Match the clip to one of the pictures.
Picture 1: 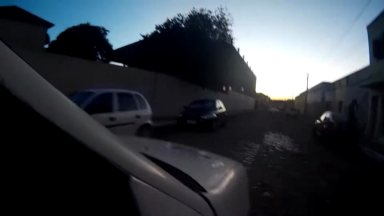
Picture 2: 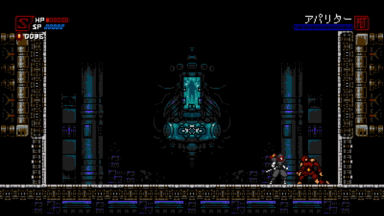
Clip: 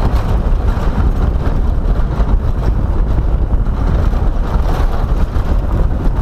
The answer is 1